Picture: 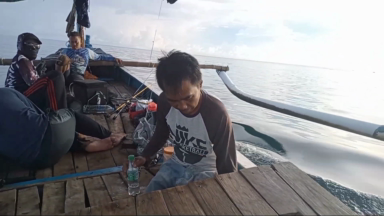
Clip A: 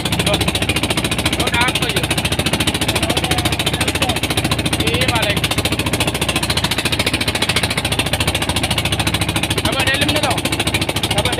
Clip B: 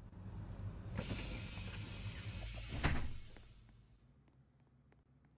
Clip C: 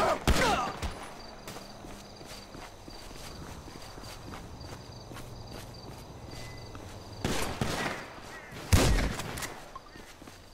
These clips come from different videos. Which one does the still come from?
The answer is A